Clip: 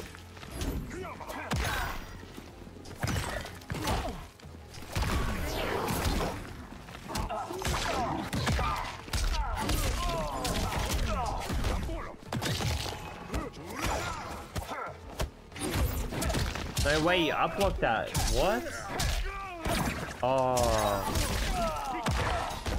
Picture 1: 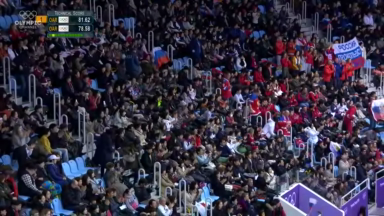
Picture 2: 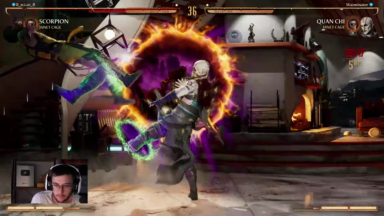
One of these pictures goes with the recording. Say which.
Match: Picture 2